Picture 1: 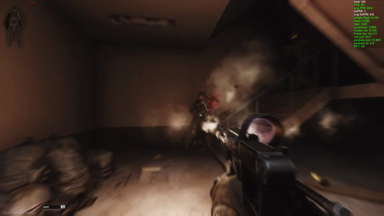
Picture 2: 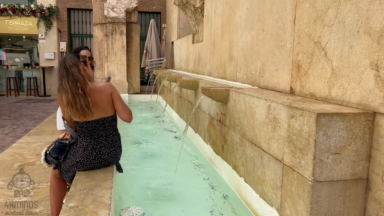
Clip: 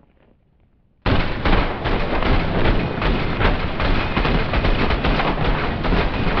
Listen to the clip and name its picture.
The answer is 1